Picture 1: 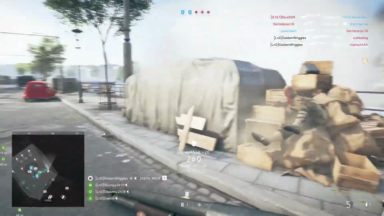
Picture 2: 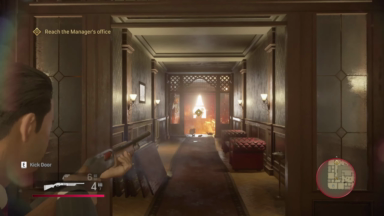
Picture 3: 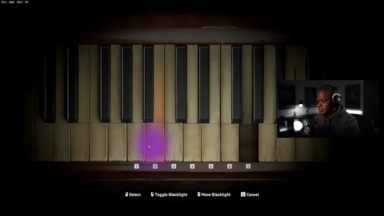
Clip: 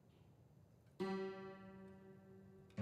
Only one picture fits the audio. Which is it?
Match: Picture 3